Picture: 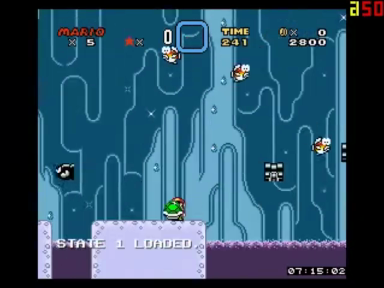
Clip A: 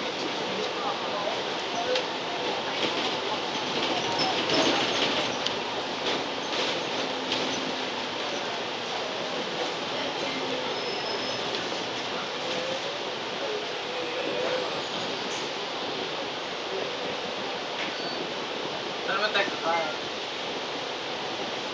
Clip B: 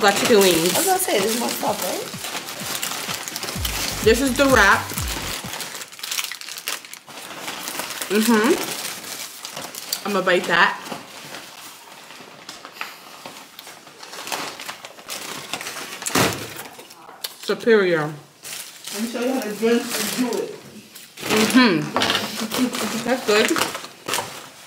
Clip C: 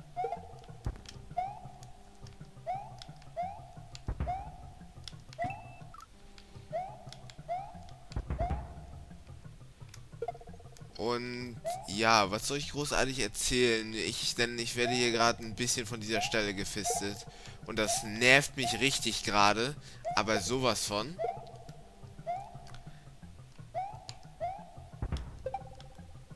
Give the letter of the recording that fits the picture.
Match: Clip C